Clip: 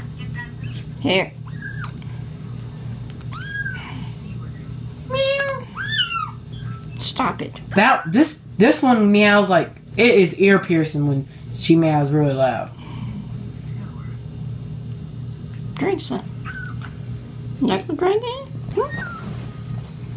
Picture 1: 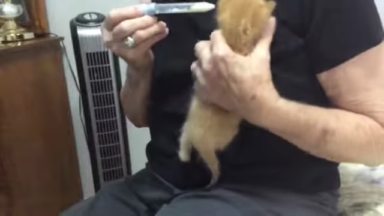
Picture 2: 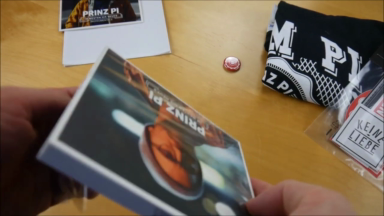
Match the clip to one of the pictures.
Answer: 1